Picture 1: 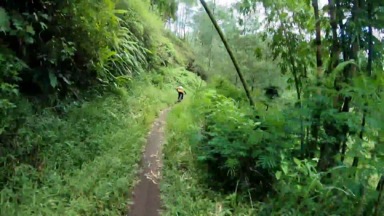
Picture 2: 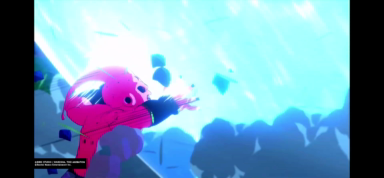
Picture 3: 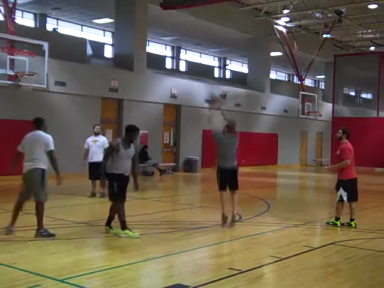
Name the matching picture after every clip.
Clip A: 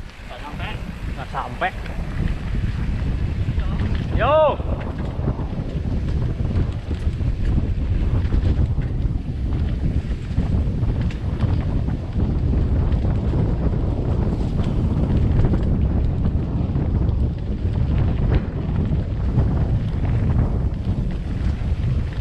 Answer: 1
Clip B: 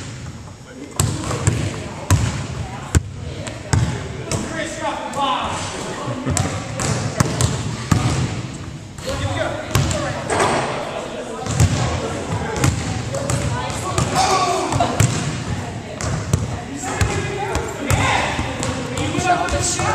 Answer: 3